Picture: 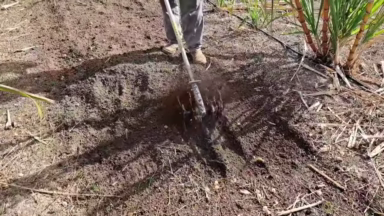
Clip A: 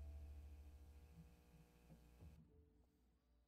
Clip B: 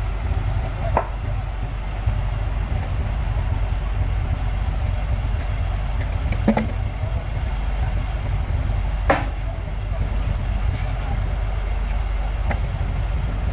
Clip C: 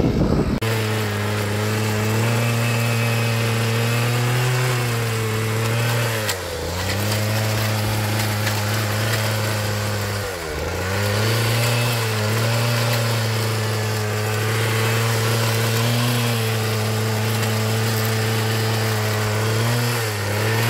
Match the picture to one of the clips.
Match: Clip C